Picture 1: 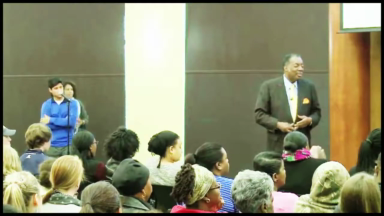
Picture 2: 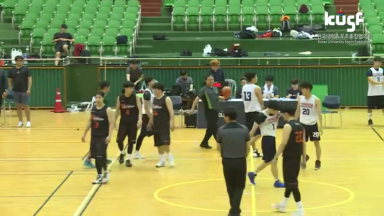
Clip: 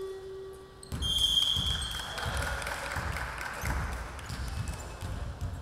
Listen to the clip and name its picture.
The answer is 2